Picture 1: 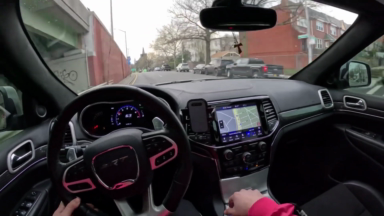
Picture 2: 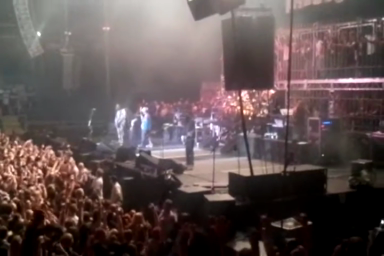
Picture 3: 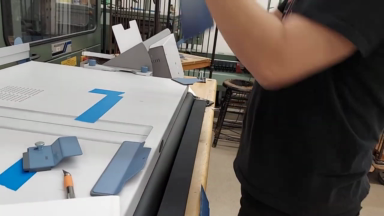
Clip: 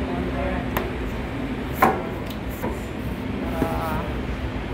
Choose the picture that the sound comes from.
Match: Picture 3